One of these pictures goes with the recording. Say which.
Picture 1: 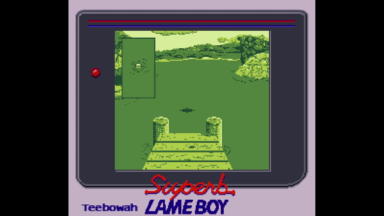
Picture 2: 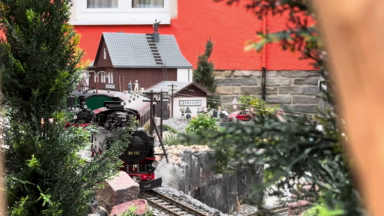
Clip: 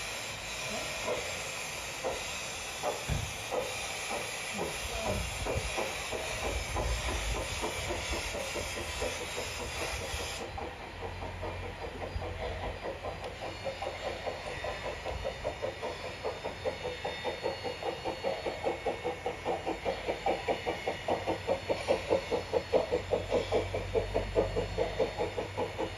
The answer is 2